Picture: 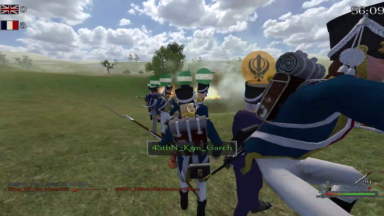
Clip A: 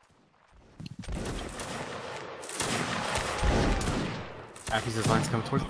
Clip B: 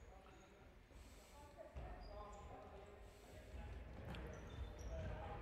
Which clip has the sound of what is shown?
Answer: A